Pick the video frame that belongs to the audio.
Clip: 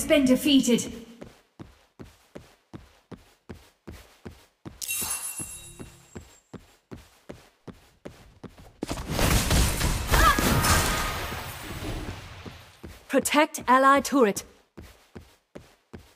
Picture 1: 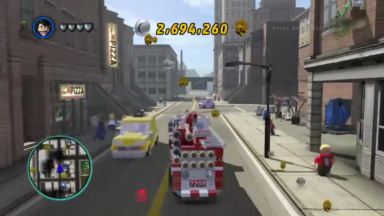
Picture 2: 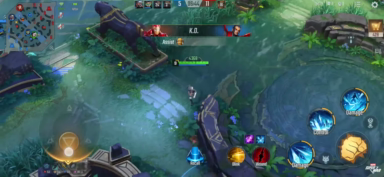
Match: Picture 2